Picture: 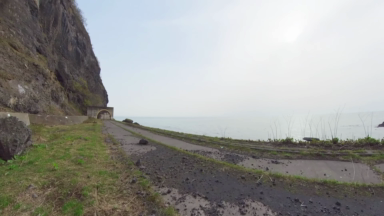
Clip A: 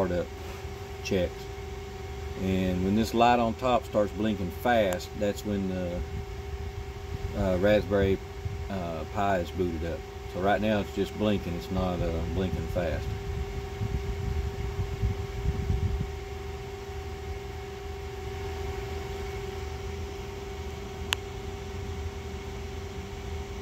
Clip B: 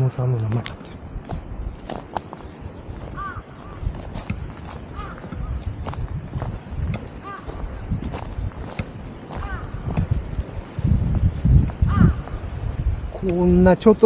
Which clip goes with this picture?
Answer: B